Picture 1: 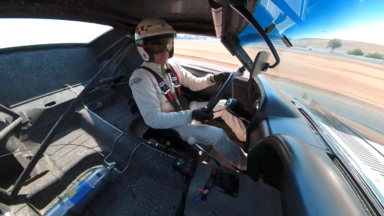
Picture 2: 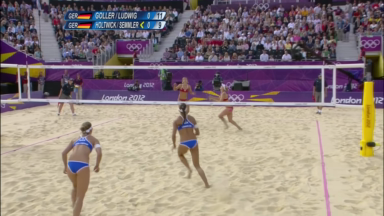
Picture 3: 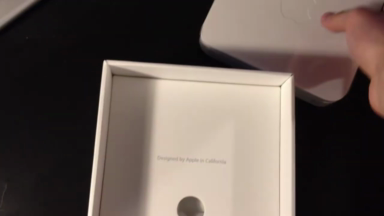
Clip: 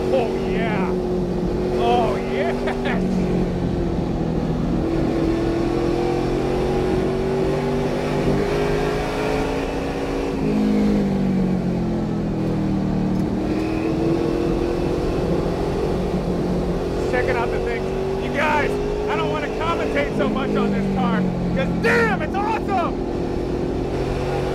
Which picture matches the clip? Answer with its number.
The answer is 1